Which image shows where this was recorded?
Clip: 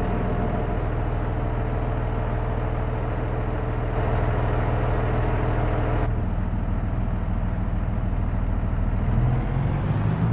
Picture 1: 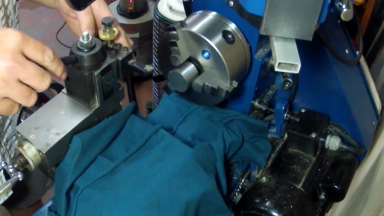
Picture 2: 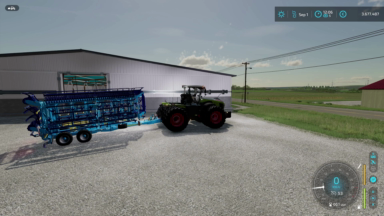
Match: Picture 2